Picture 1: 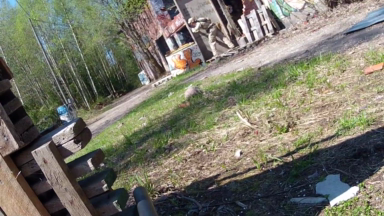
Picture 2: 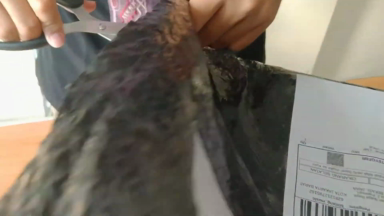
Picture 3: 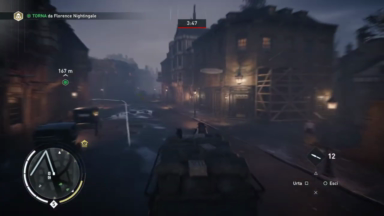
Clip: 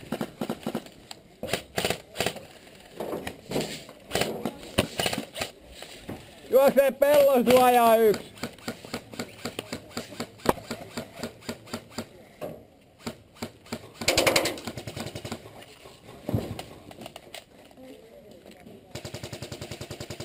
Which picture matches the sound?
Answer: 1